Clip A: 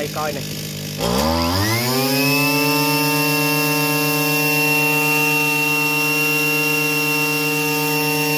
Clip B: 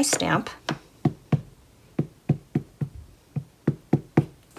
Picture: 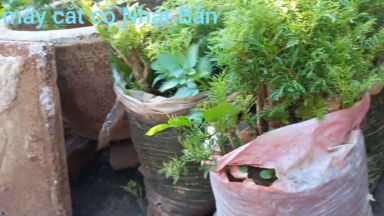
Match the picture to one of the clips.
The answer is A